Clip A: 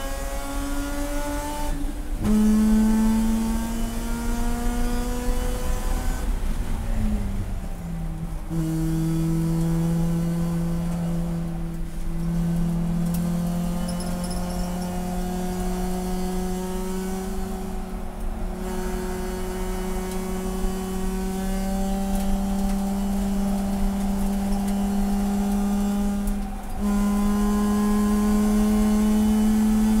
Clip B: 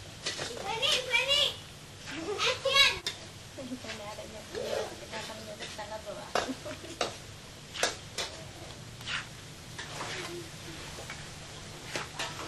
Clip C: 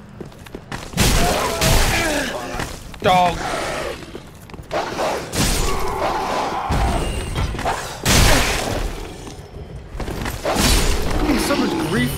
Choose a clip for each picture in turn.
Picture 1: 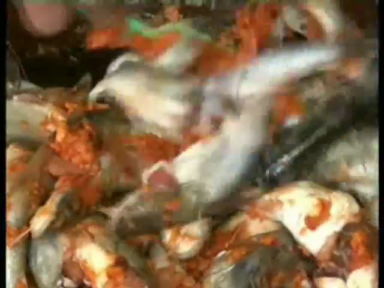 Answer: B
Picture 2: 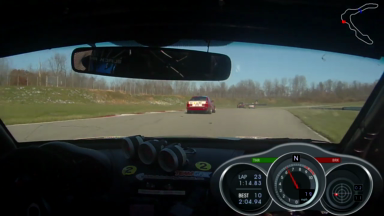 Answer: A